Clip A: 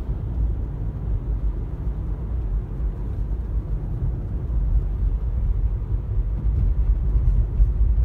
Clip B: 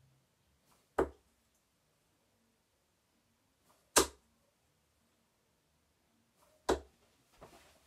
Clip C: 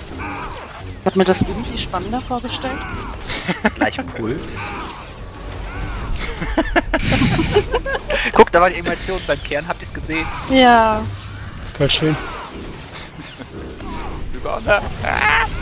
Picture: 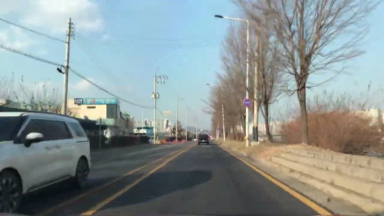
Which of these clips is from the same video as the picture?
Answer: A